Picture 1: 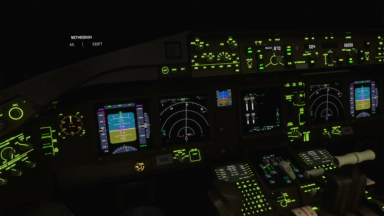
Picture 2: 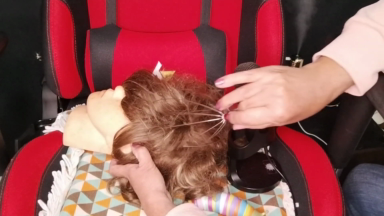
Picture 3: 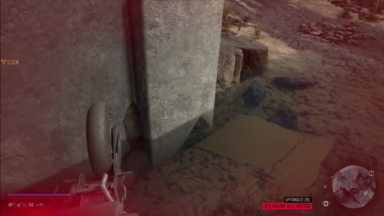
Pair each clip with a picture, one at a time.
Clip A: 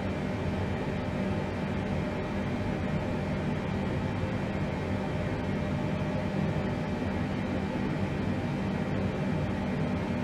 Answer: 1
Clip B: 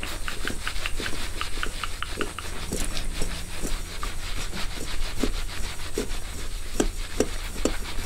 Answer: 2